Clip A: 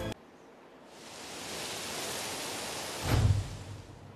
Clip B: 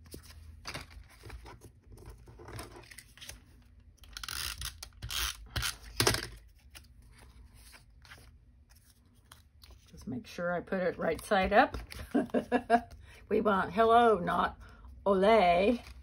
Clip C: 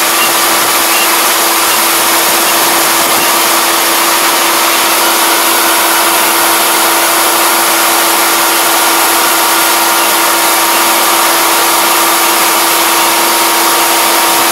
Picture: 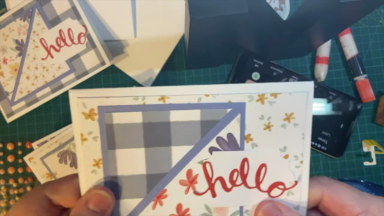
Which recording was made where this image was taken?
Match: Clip B